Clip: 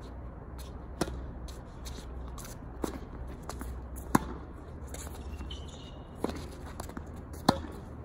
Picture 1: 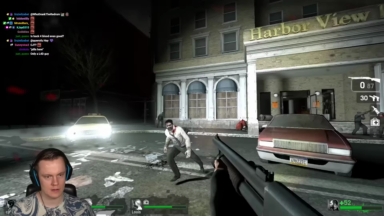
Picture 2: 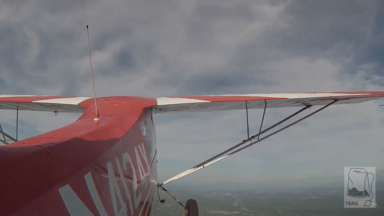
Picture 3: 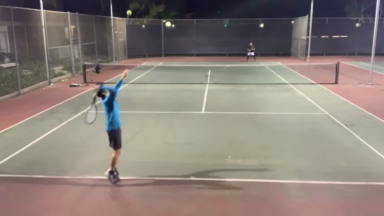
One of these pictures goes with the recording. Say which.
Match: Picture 3